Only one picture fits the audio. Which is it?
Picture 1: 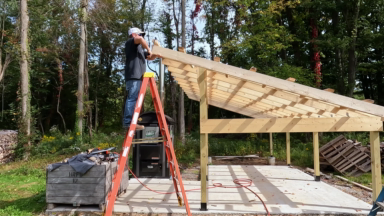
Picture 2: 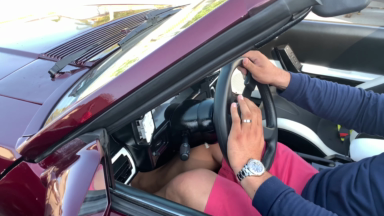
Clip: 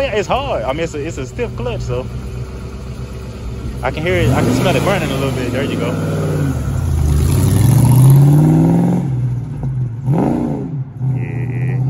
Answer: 2